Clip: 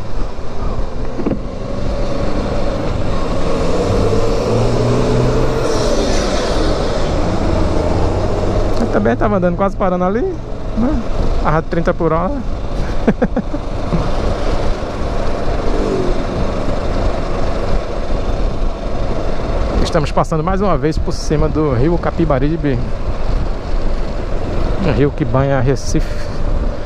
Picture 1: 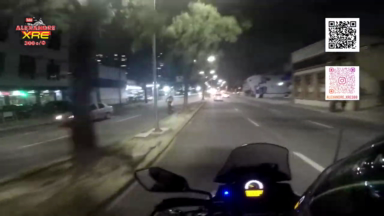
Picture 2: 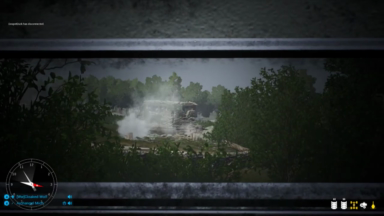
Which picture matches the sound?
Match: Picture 1